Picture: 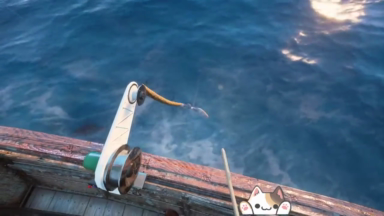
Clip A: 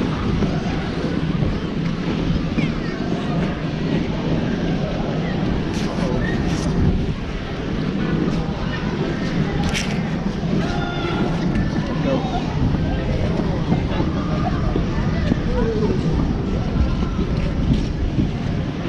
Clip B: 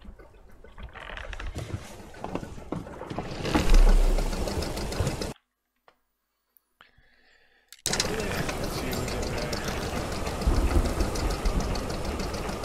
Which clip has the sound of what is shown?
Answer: B